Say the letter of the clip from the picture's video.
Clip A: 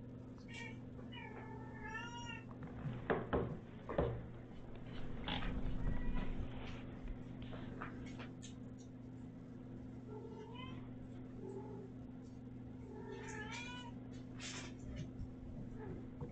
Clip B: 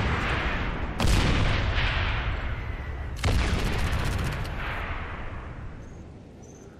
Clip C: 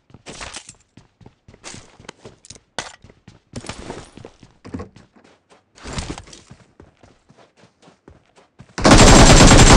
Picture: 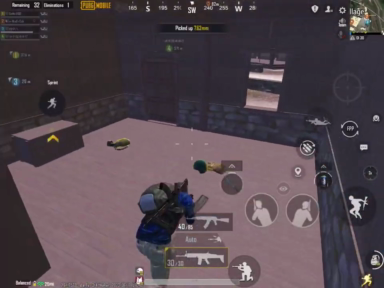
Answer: C